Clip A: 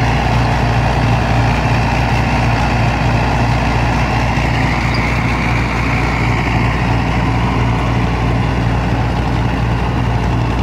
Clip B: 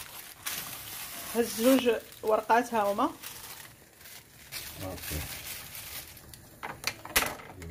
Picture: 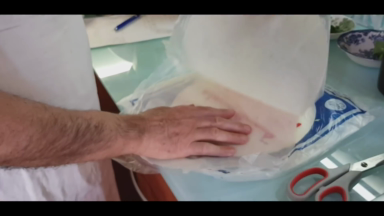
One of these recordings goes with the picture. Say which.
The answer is B